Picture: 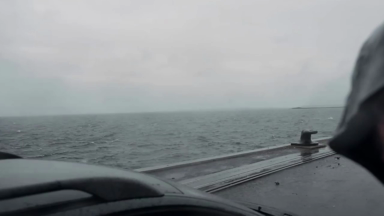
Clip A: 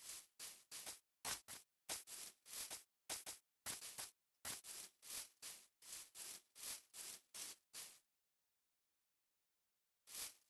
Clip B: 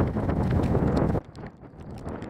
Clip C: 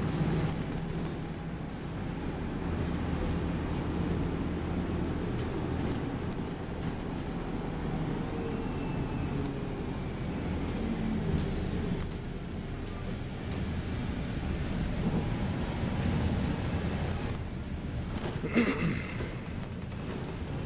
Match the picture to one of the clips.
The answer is B